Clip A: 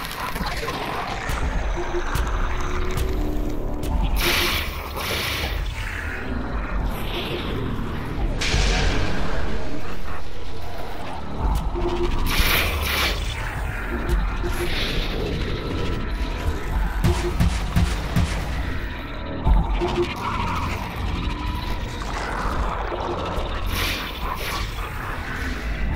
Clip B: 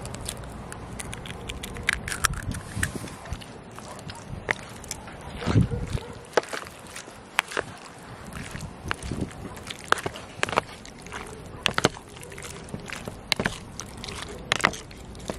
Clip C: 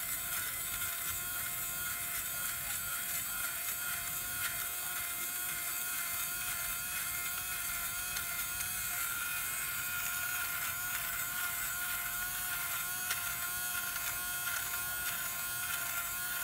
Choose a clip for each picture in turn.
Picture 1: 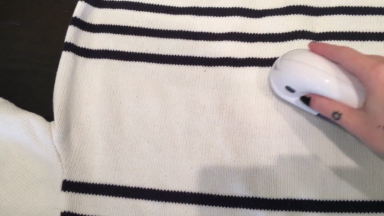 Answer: C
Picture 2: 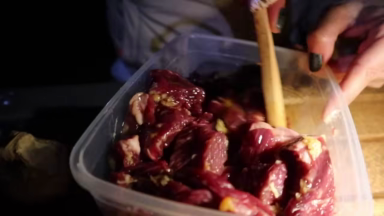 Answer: B